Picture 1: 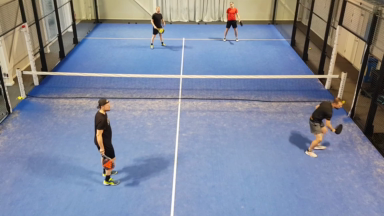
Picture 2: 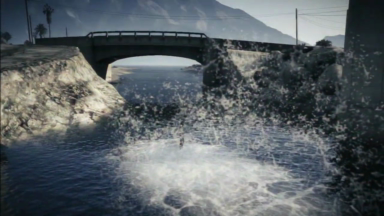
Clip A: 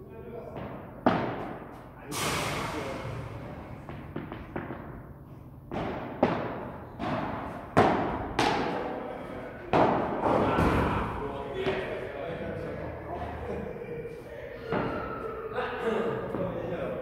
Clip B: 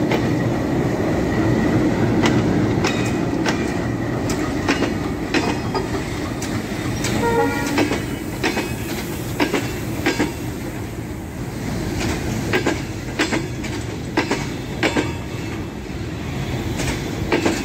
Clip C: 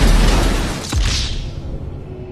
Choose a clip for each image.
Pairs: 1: A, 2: C